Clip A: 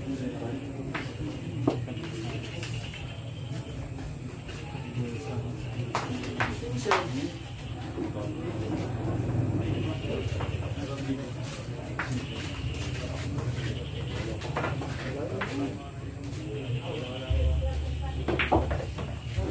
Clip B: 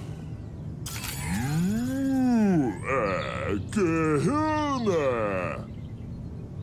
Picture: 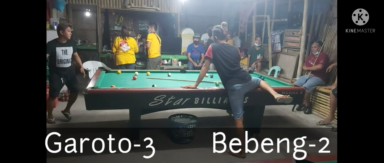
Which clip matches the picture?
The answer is A